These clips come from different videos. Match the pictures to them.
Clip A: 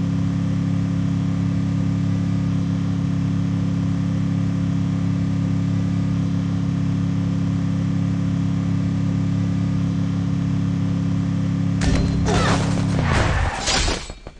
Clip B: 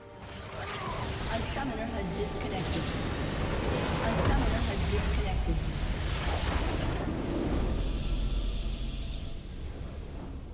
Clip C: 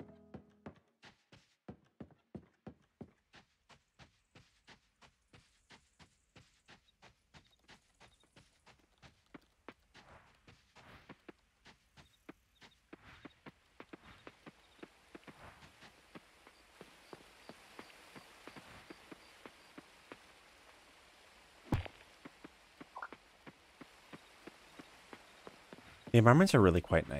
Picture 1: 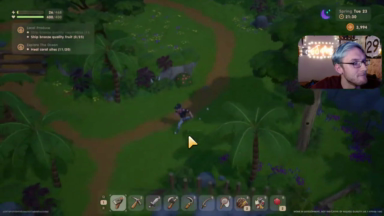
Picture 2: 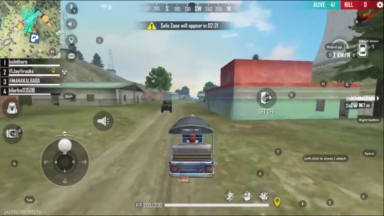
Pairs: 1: C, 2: A